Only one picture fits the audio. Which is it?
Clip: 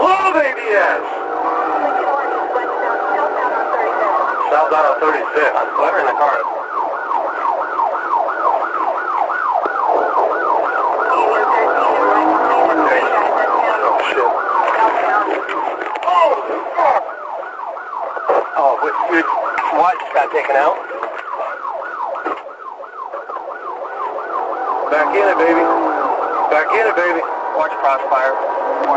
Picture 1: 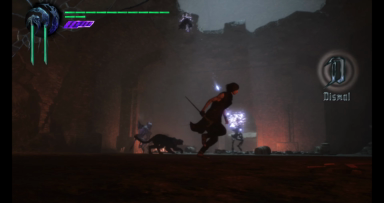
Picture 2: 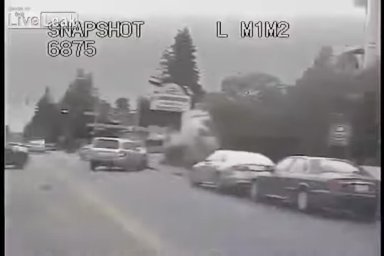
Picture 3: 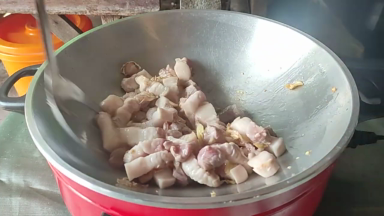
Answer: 2